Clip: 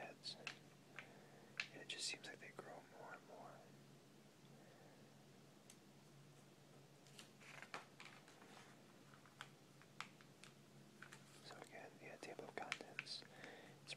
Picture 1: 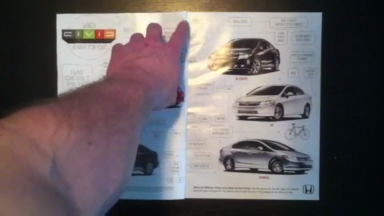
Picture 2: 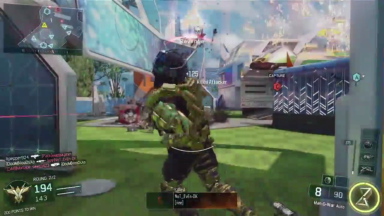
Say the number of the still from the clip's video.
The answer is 1